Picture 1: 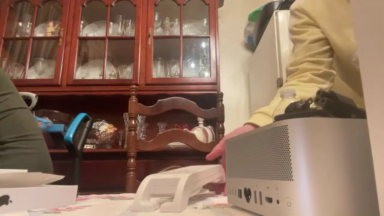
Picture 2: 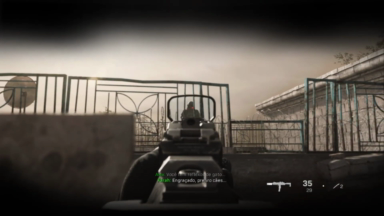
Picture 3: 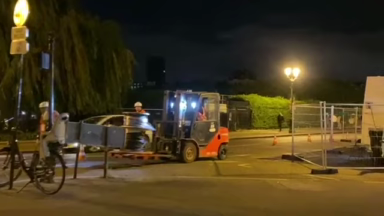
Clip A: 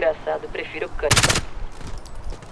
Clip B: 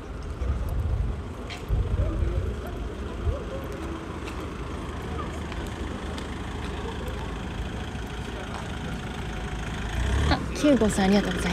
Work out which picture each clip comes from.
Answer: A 2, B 3